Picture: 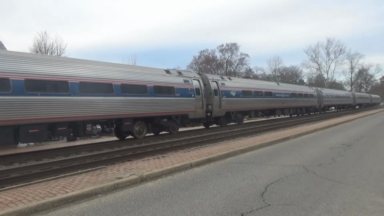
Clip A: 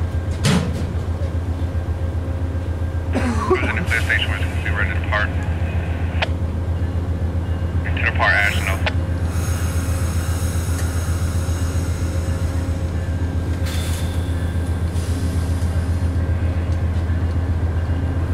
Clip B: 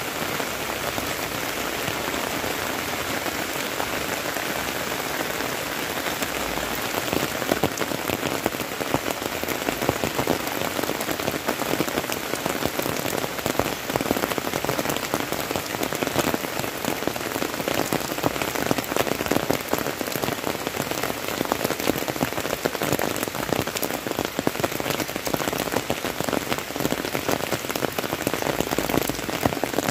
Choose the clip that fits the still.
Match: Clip A